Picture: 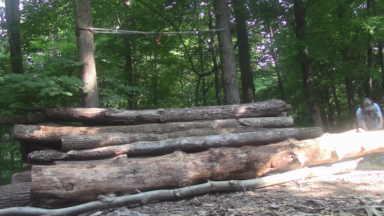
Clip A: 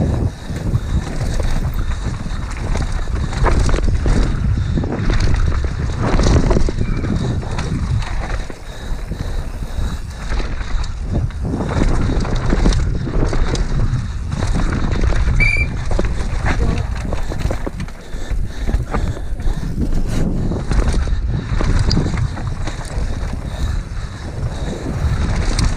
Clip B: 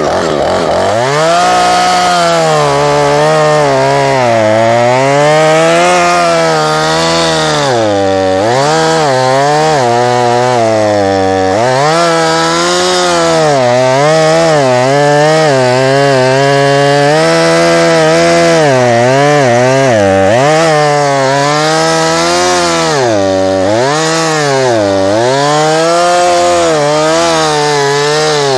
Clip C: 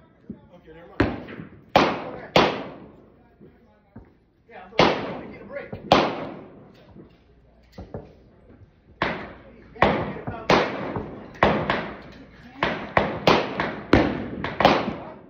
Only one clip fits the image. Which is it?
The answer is B